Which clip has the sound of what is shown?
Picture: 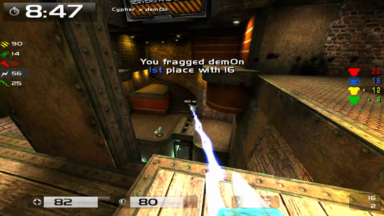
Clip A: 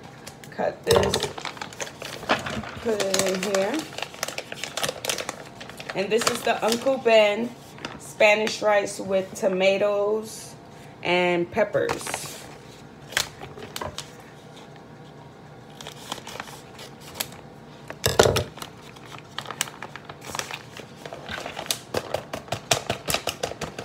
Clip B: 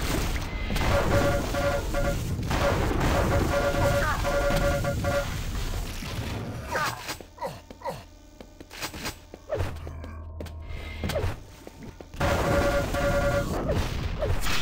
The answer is B